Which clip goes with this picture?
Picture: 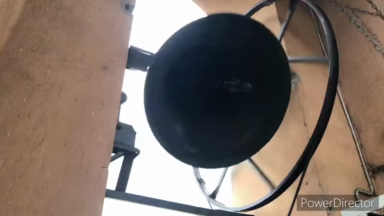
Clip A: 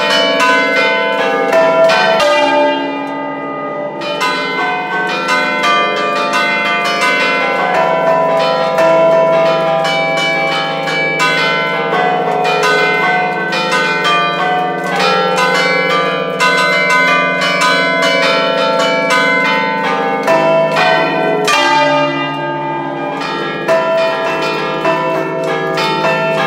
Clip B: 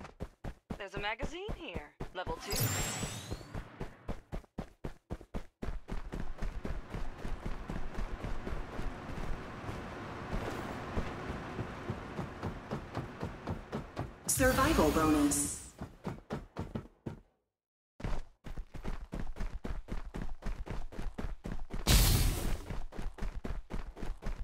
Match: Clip A